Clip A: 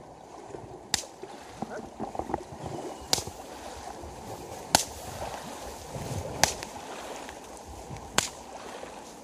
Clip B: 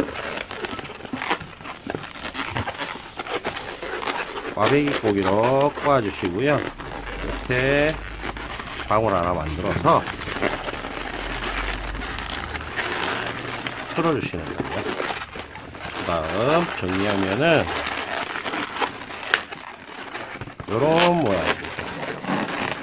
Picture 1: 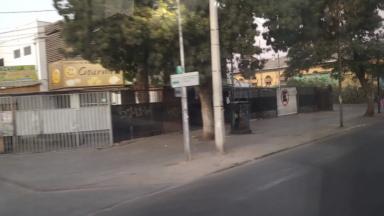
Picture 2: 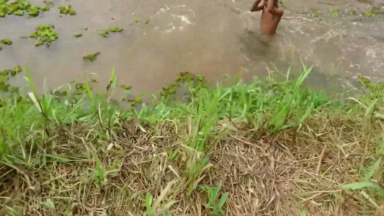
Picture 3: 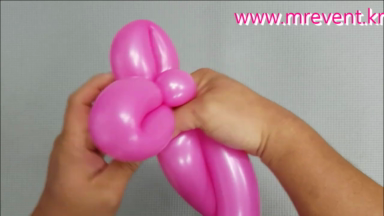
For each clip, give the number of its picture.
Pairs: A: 2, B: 3